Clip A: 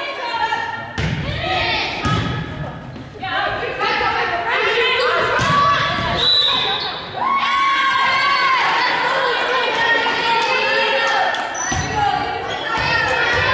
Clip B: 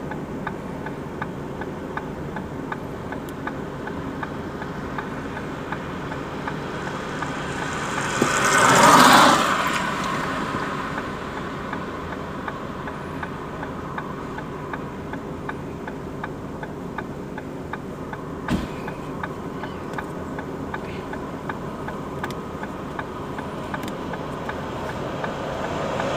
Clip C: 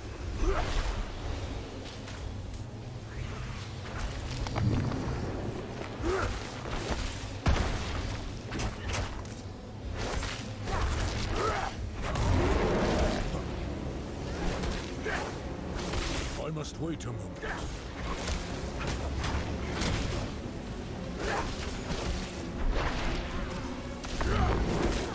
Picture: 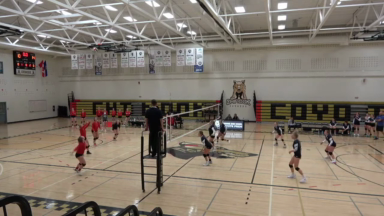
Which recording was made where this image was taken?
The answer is A